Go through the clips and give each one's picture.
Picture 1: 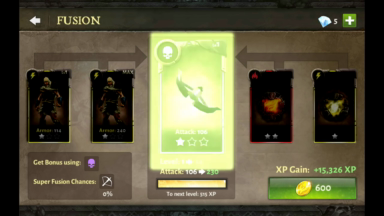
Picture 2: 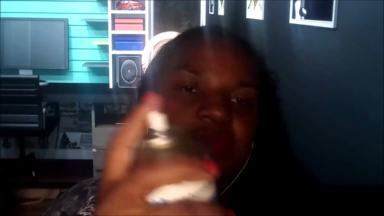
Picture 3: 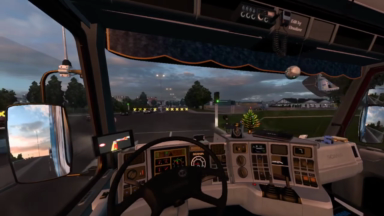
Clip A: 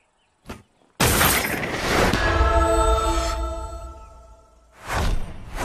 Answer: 1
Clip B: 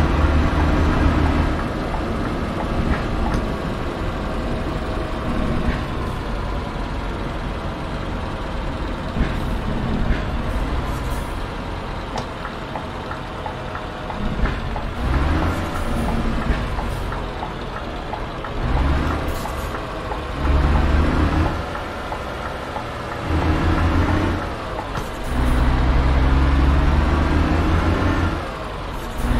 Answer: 3